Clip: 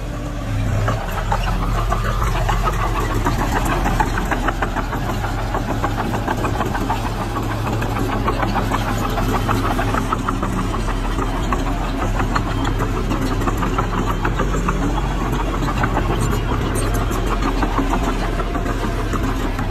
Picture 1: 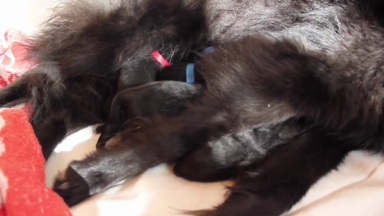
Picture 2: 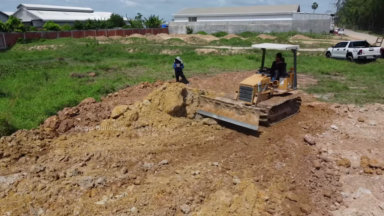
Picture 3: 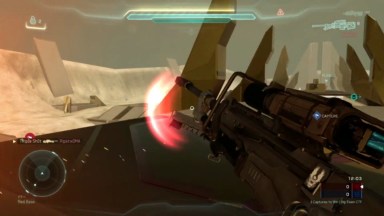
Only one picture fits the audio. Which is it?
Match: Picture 2